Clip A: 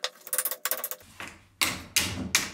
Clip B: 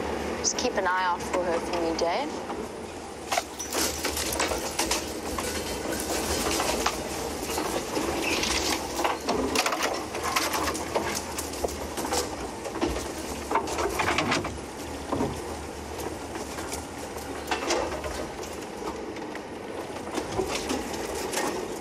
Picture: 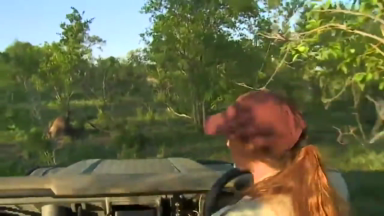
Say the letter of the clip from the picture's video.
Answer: B